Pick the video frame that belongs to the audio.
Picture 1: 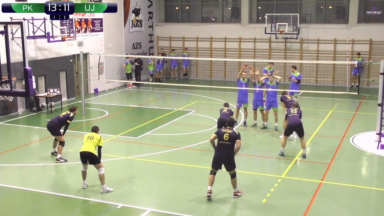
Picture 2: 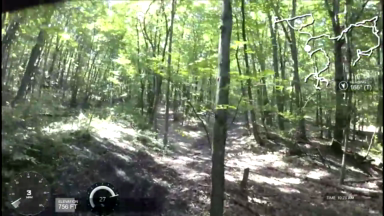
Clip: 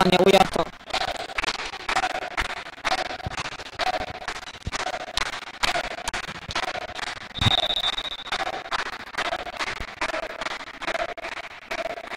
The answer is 1